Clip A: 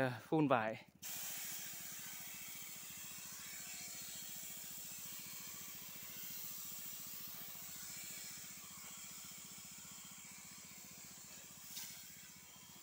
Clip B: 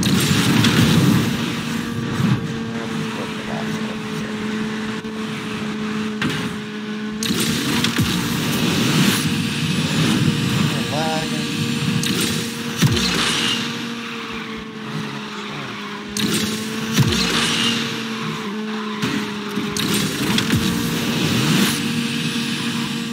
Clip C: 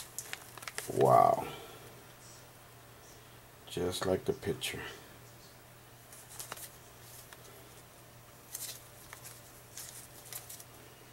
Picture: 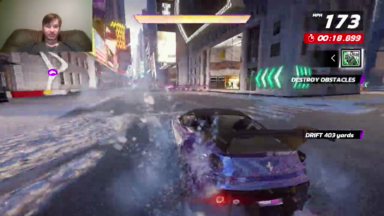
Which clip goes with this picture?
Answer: B